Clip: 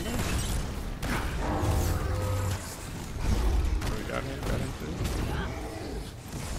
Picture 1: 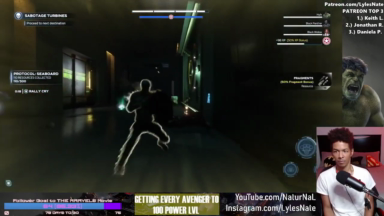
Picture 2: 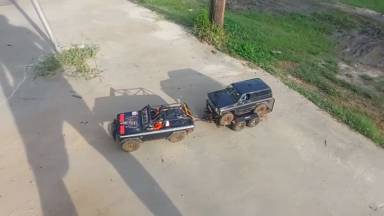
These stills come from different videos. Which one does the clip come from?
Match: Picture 1